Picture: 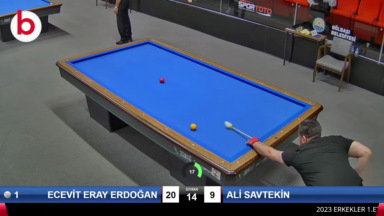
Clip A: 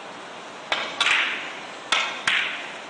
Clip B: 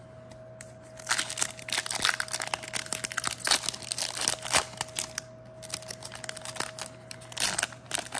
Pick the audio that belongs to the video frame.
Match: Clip A